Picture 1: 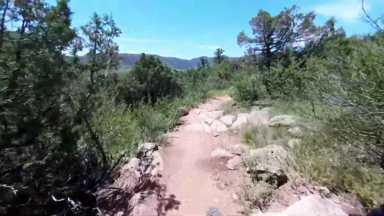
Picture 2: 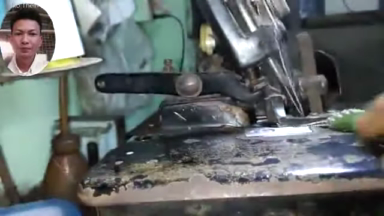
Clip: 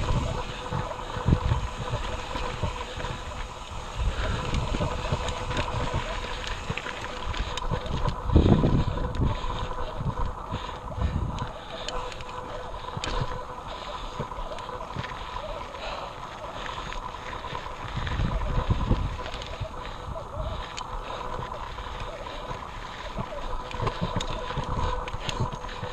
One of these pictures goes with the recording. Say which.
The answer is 1